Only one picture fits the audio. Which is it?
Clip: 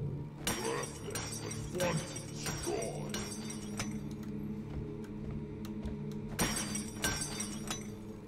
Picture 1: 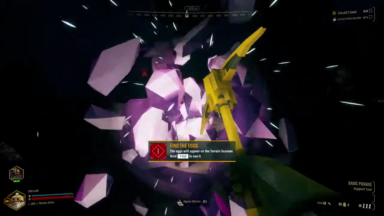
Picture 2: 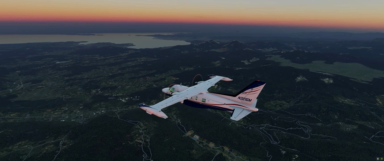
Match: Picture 1